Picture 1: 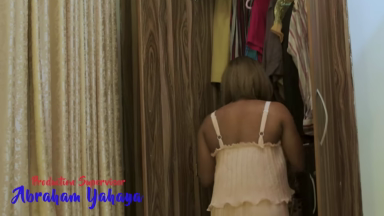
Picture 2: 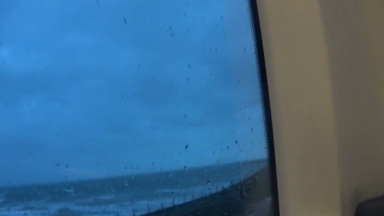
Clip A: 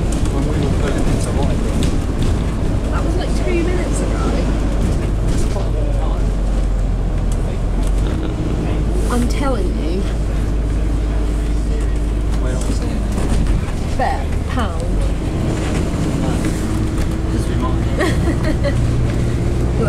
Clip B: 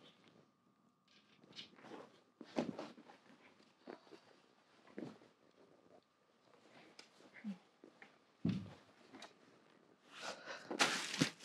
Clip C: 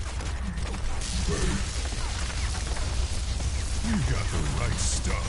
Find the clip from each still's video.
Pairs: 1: B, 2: A